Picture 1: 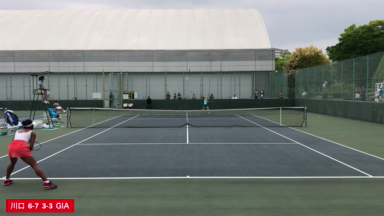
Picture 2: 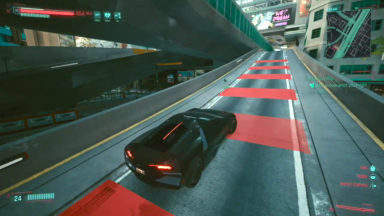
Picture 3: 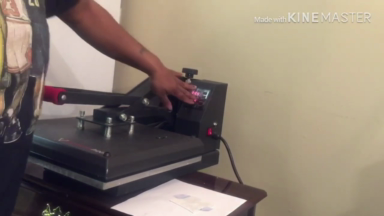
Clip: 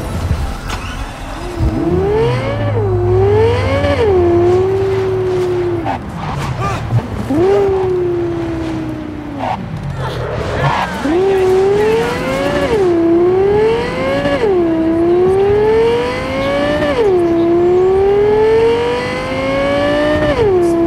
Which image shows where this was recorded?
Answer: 2